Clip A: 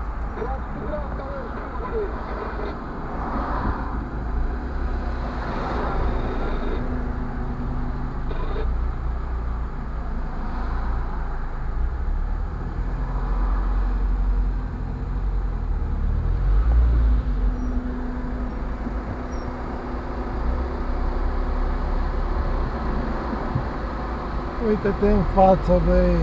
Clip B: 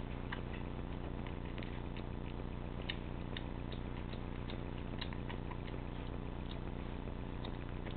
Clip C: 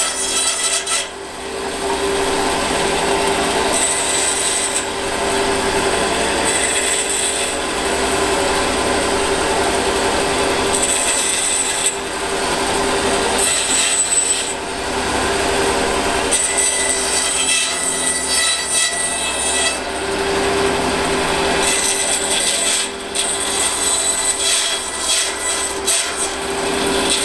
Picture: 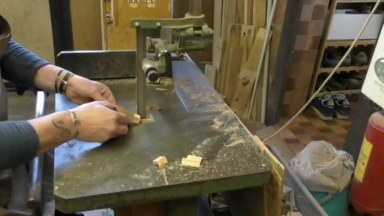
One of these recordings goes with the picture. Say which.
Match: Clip C